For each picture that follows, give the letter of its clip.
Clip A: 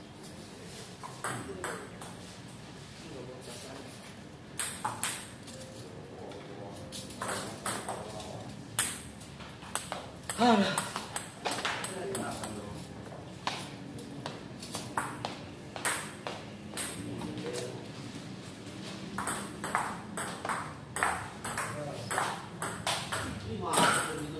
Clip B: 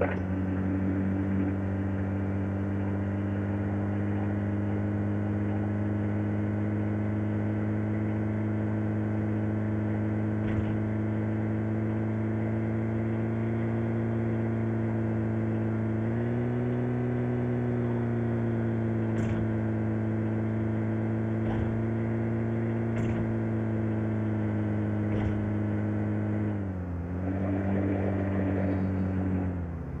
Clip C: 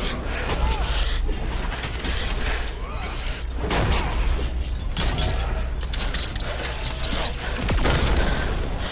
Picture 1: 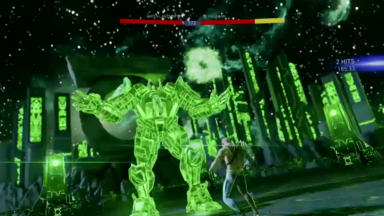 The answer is C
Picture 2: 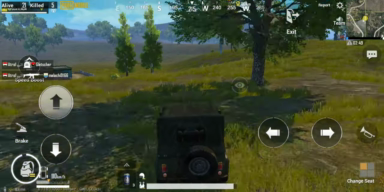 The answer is B